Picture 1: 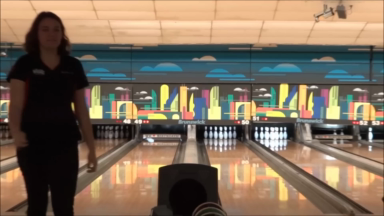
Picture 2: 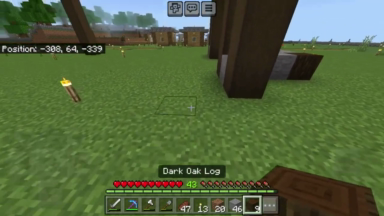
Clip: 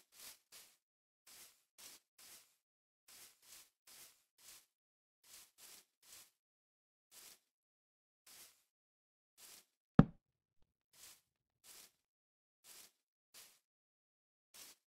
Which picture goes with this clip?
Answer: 2